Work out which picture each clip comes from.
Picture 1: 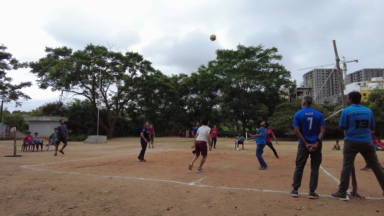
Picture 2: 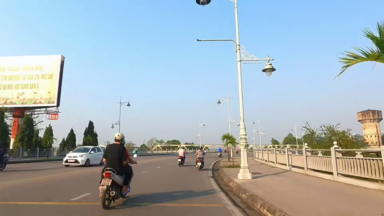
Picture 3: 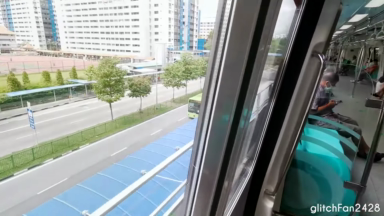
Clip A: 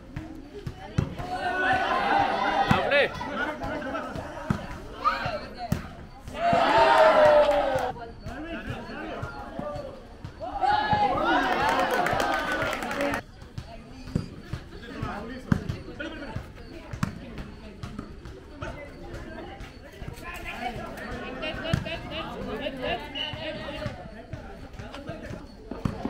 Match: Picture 1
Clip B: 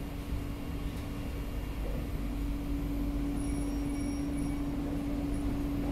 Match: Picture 3